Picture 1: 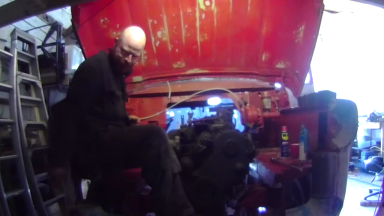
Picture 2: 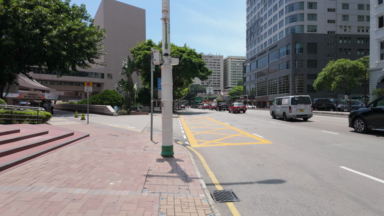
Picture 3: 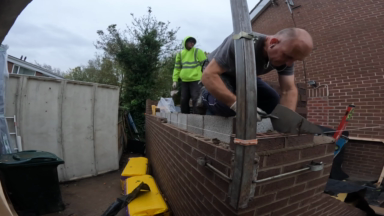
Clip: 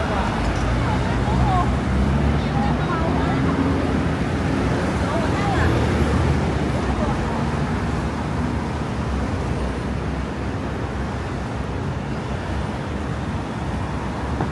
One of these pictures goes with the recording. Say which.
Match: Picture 2